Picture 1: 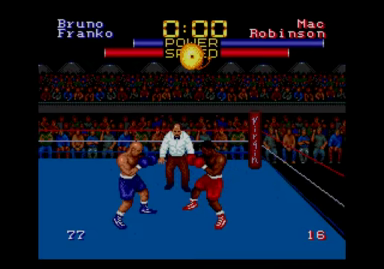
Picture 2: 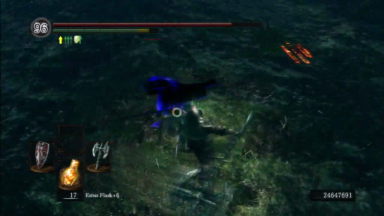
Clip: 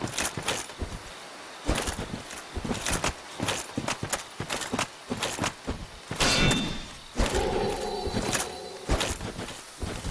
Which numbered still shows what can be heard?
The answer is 2